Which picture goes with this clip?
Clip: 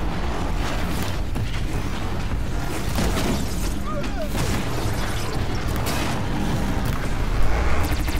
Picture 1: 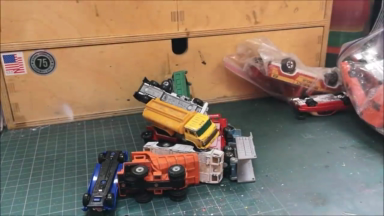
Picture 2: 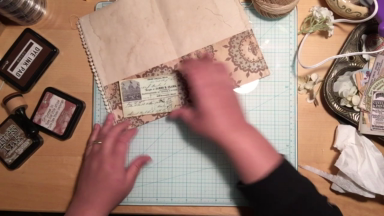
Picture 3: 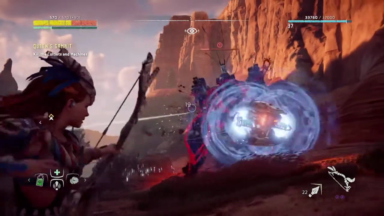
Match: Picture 3